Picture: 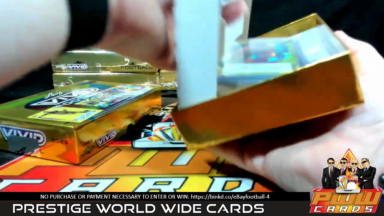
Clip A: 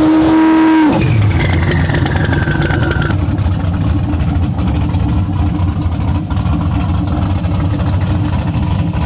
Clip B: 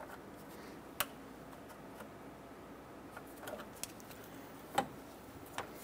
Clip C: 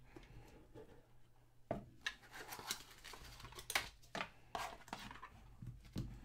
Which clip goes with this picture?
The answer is C